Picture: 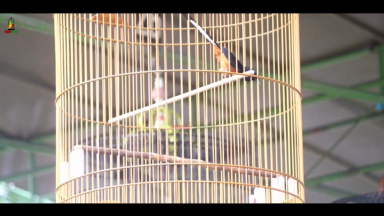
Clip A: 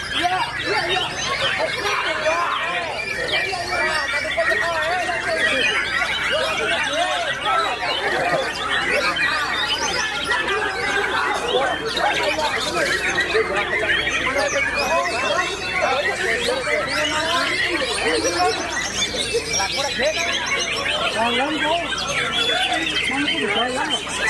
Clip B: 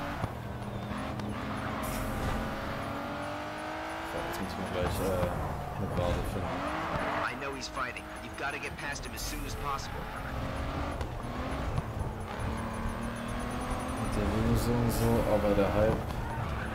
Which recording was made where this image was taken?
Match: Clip A